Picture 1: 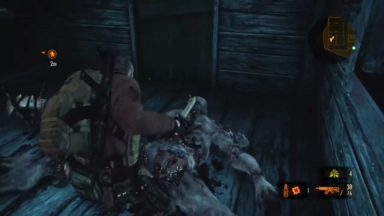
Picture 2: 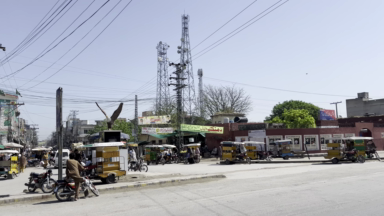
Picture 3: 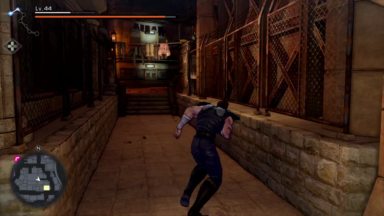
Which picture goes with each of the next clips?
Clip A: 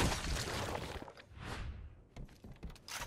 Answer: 1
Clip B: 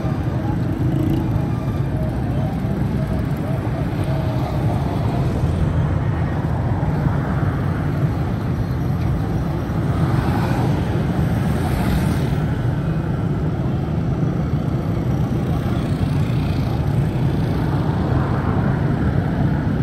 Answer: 2